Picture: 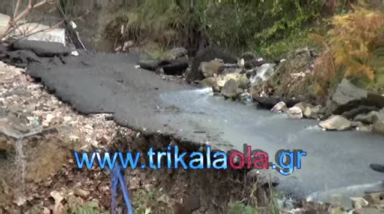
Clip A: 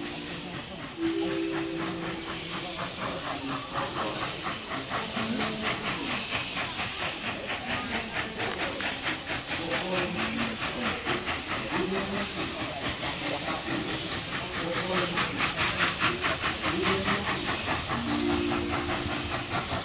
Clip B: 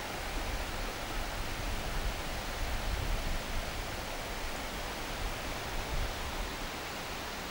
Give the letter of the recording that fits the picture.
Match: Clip B